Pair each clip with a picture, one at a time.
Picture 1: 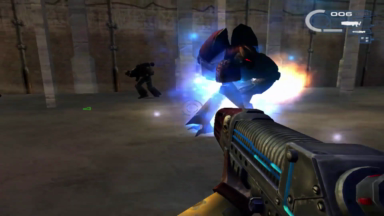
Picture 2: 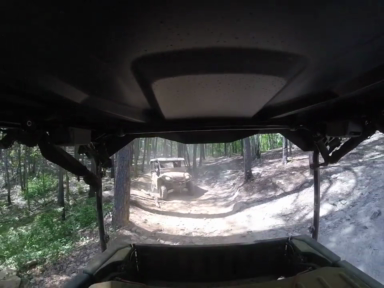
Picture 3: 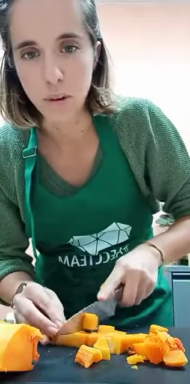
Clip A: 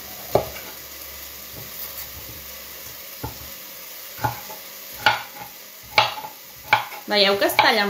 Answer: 3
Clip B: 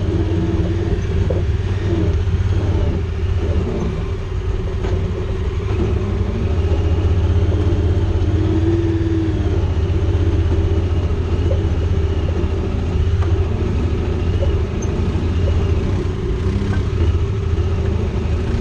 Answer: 2